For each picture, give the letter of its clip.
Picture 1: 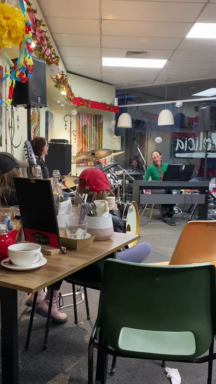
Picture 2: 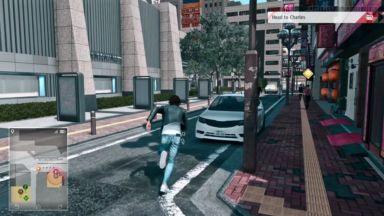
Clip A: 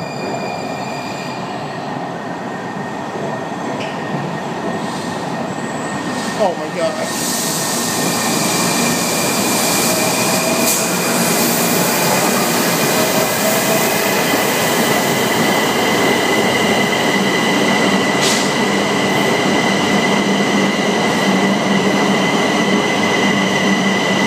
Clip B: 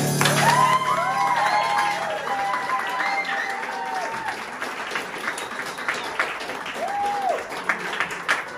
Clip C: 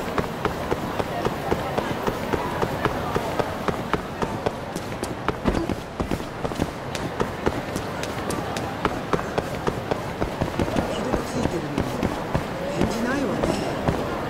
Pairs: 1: B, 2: C